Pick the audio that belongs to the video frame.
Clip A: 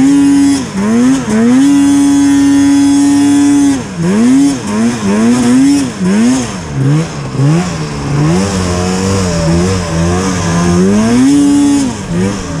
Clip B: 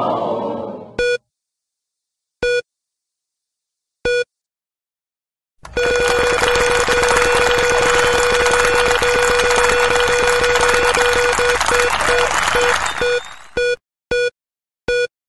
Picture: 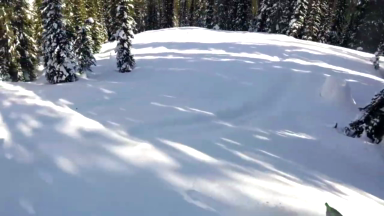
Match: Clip A